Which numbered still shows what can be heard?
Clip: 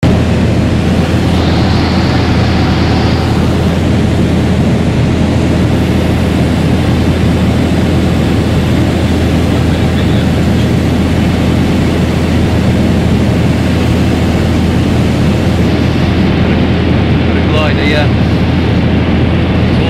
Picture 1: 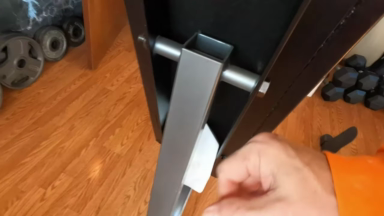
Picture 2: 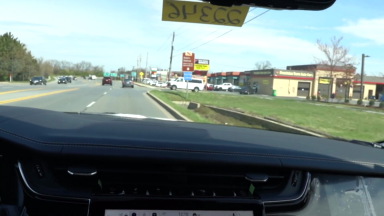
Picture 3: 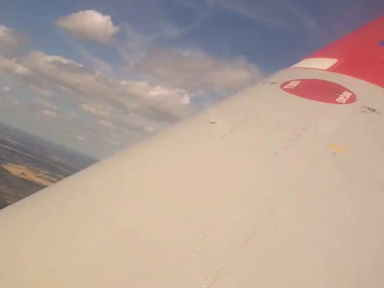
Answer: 3